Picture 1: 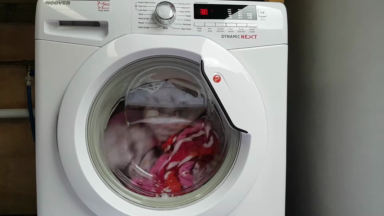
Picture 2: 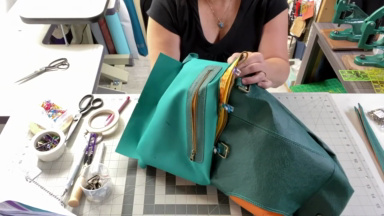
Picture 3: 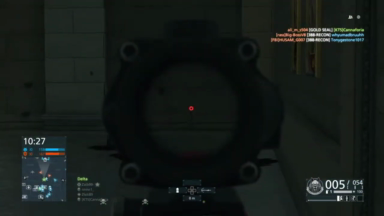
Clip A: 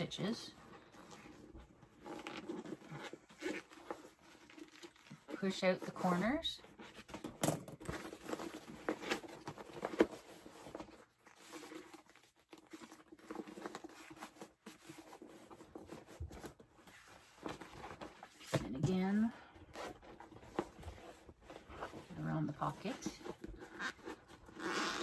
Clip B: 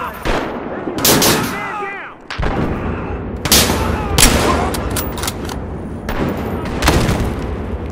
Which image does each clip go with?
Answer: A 2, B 3